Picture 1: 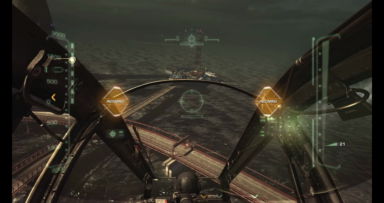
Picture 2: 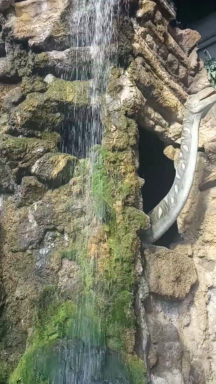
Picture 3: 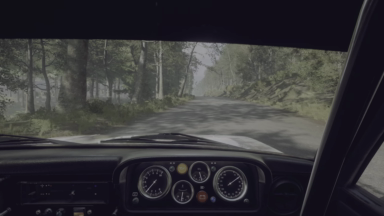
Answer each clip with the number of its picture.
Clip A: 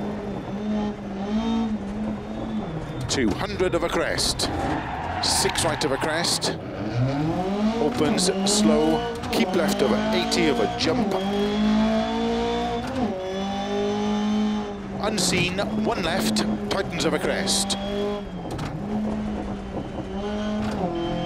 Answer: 3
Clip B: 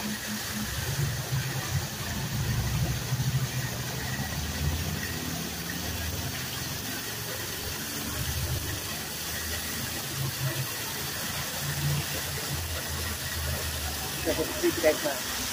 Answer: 2